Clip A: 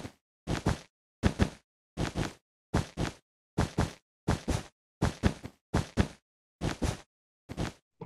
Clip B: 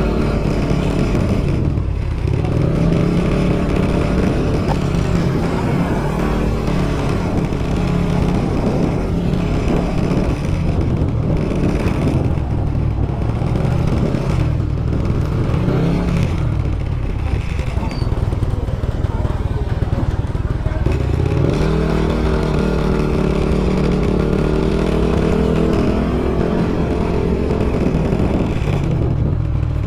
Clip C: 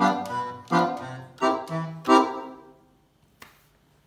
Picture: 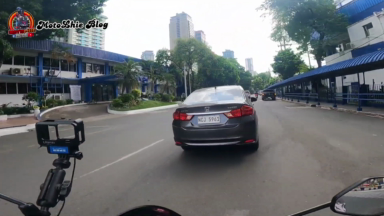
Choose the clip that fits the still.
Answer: B